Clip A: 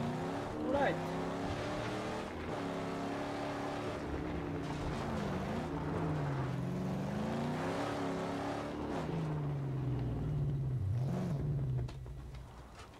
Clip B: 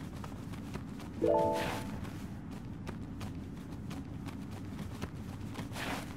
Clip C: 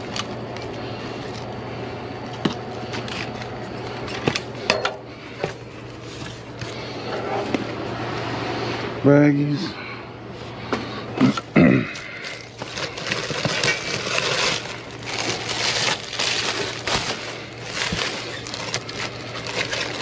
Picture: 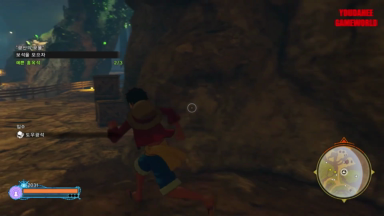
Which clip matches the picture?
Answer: B